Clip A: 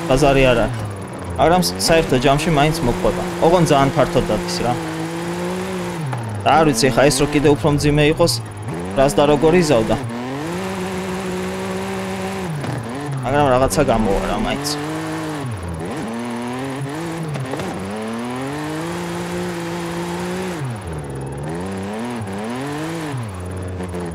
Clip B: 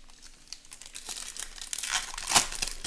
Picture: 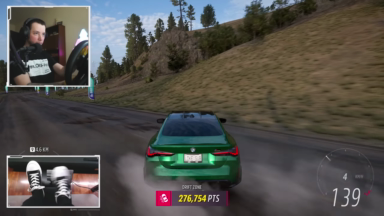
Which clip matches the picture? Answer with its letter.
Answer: A